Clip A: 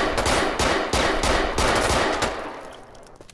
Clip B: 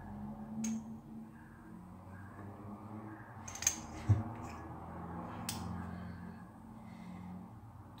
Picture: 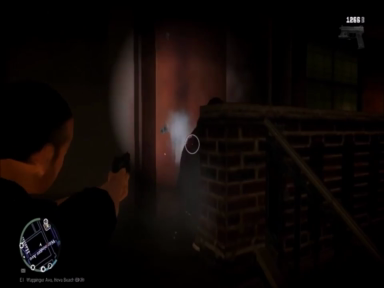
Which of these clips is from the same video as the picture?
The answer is A